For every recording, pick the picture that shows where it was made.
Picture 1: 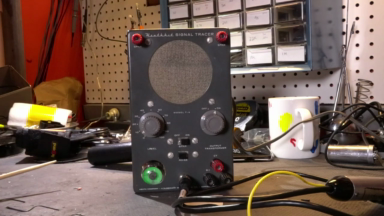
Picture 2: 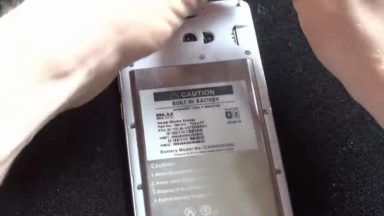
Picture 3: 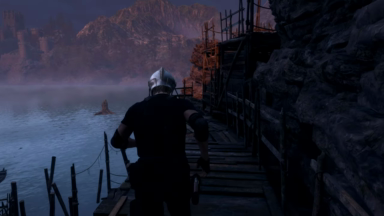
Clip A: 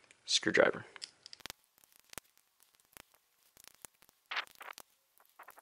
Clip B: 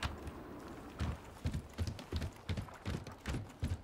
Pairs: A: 2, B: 3